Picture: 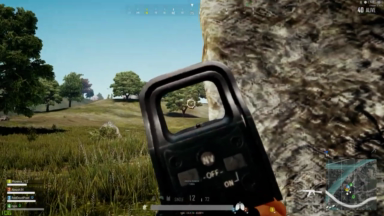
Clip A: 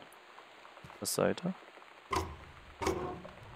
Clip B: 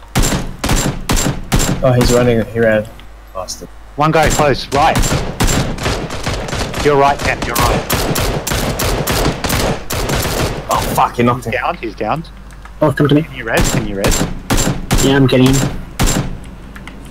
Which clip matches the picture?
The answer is B